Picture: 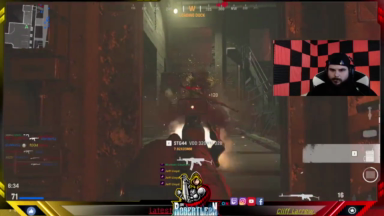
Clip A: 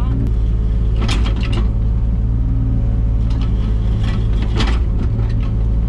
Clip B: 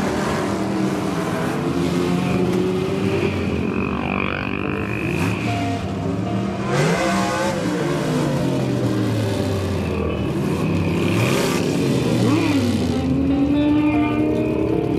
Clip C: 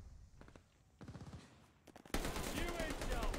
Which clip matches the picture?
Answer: C